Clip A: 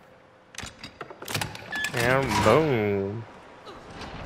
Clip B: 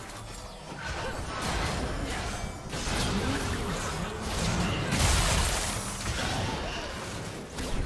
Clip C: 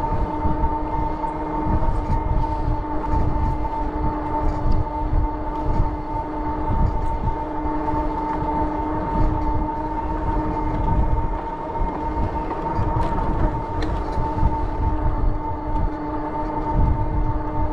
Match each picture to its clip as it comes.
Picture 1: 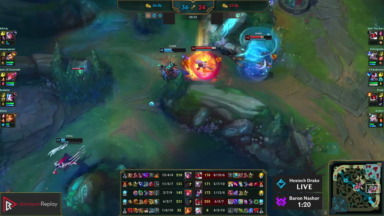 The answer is B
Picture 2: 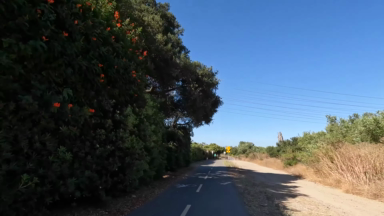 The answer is C